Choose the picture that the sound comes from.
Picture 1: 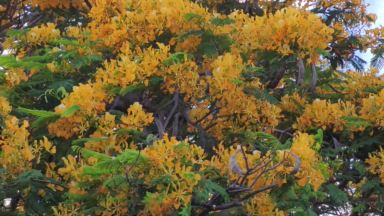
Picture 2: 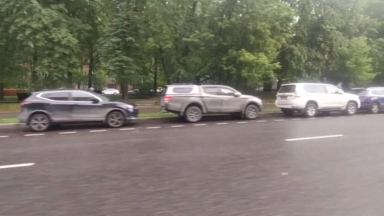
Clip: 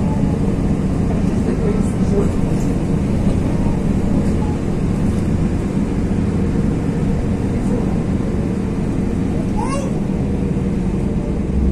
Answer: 2